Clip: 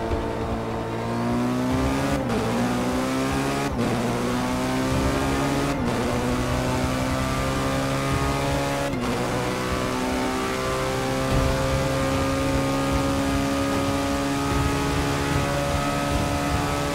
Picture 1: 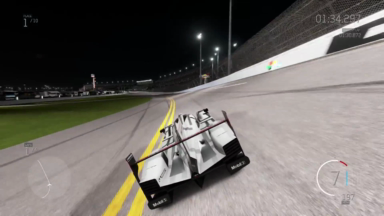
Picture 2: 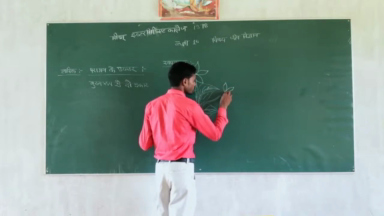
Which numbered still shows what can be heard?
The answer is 1